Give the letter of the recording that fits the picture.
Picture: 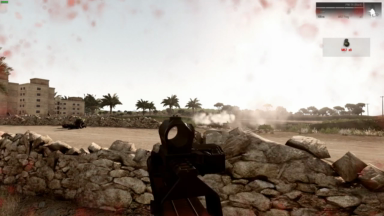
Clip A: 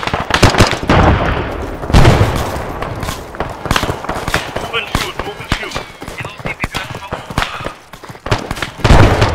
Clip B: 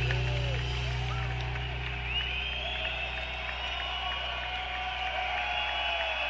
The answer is A